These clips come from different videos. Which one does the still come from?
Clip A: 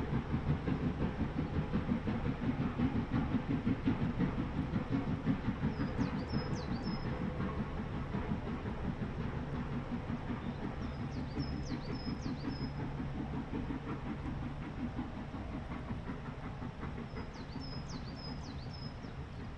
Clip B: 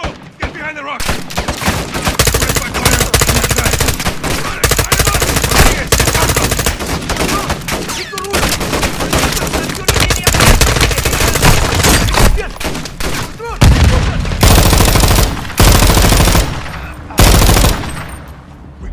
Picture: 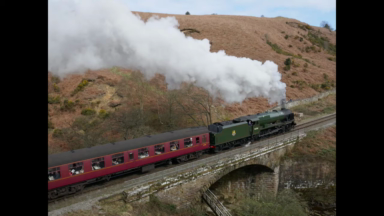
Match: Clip A